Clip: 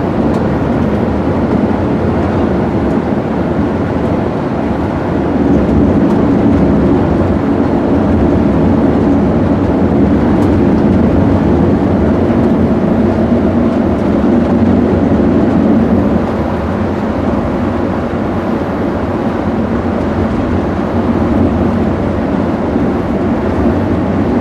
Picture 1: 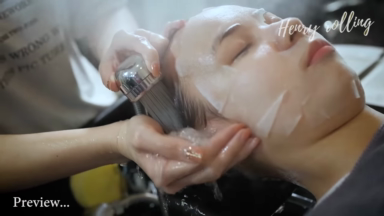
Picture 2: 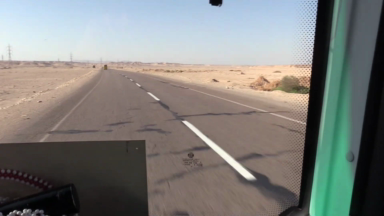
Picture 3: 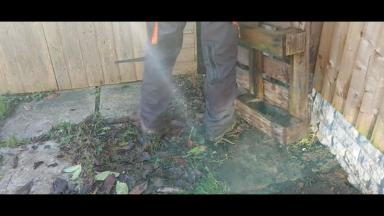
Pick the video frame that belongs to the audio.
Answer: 2